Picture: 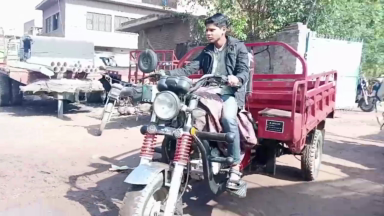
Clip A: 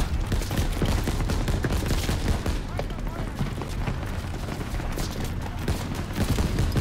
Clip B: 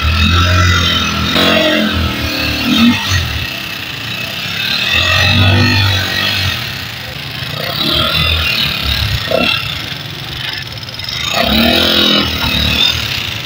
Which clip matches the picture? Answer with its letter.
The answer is B